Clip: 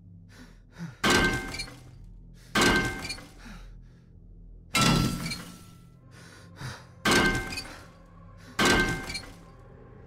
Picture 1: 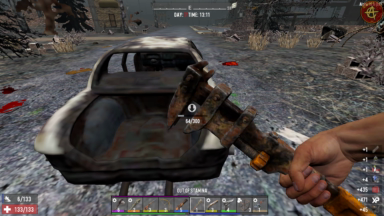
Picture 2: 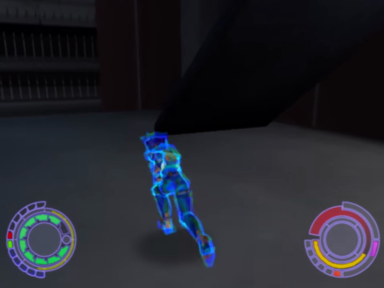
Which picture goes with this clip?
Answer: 1